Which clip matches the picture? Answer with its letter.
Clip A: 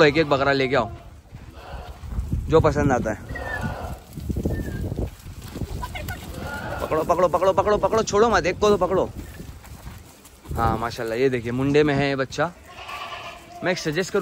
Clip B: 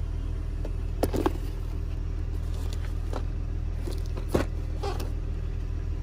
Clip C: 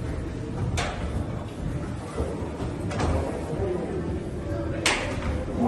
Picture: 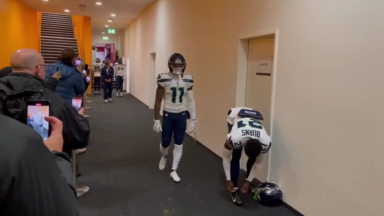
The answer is C